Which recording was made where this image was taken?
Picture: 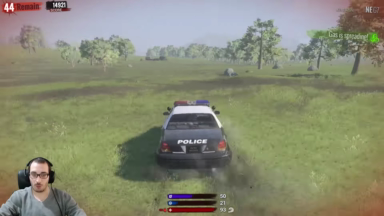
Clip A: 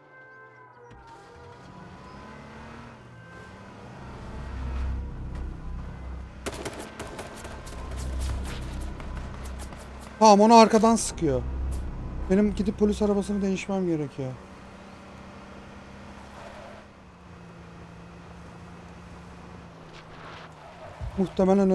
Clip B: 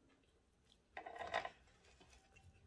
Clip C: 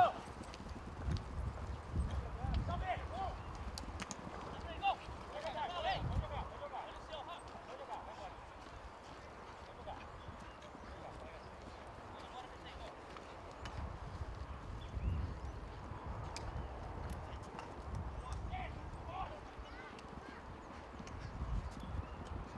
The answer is A